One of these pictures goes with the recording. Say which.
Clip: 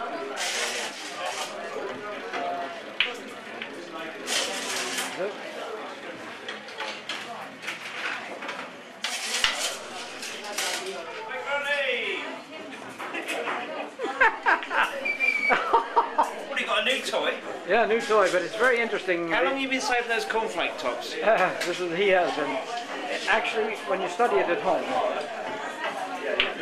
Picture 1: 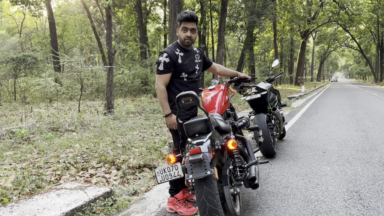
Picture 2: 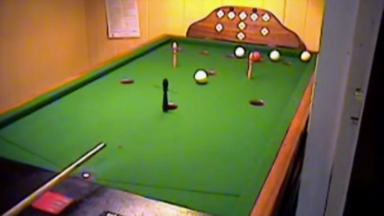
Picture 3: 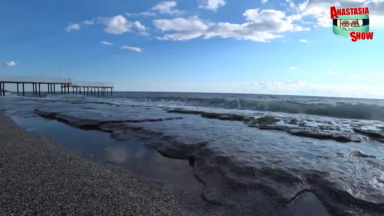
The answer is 2